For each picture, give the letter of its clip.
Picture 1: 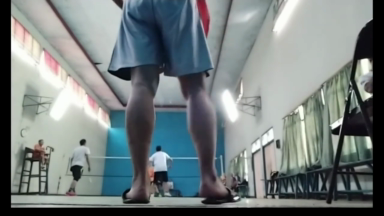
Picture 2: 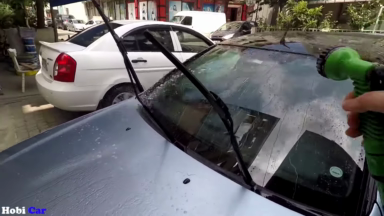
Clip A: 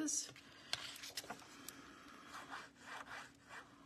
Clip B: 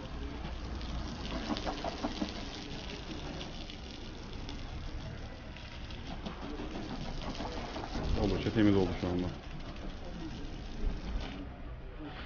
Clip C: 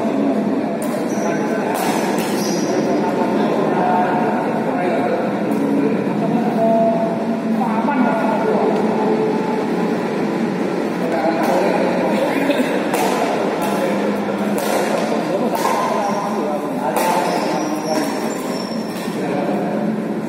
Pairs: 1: C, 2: B